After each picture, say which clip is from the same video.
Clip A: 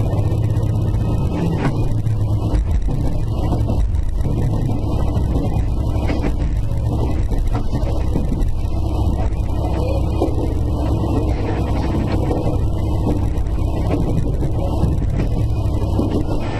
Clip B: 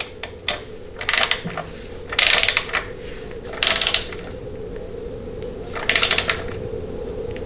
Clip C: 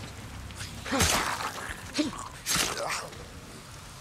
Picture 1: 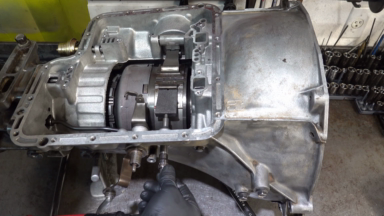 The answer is B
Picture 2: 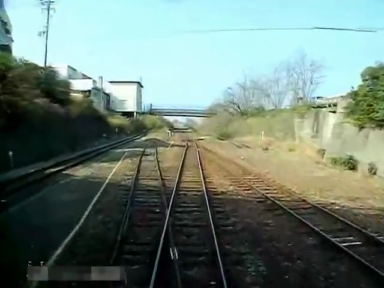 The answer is A